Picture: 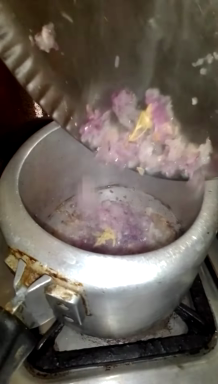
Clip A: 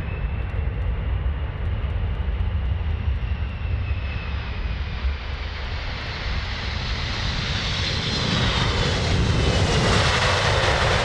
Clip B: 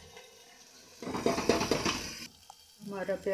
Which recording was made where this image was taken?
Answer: B